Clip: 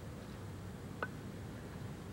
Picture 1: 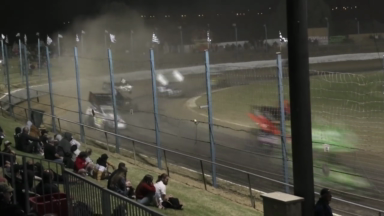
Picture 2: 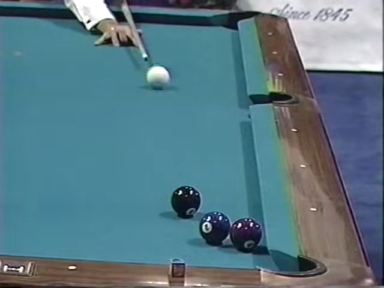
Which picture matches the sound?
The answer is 2